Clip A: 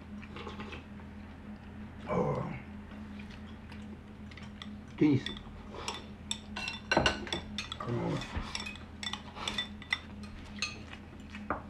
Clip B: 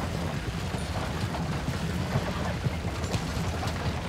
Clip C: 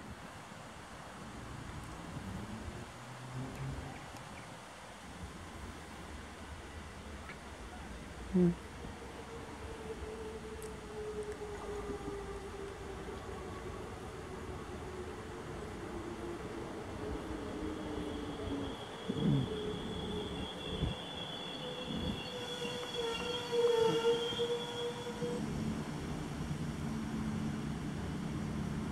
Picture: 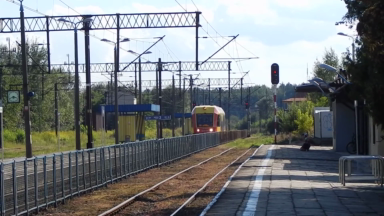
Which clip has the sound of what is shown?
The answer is C